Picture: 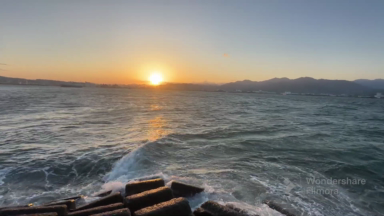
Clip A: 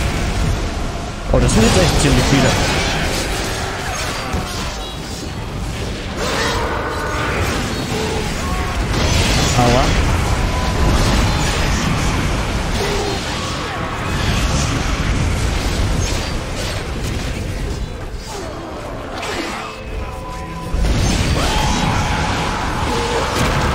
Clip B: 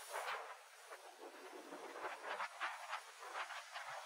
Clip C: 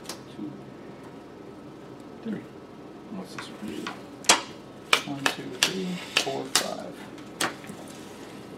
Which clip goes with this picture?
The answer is B